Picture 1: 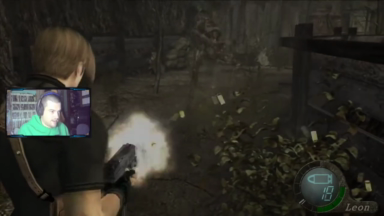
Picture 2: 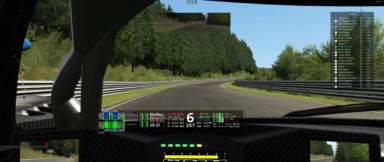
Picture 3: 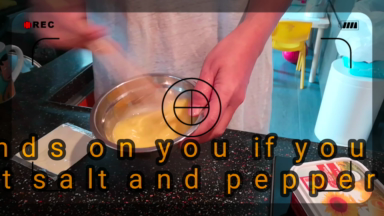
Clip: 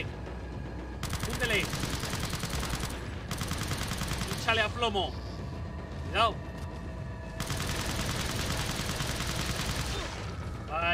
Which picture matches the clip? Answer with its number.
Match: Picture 1